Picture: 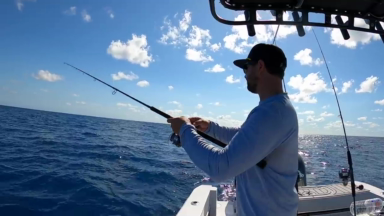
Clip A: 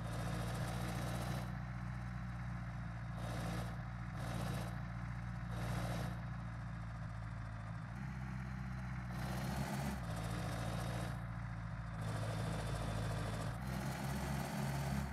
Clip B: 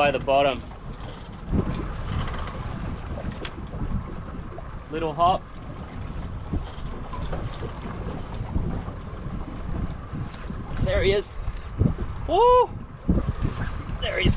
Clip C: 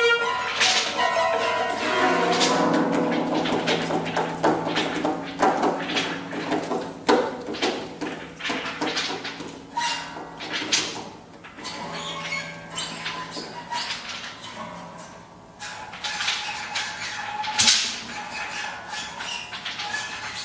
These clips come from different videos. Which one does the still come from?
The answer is B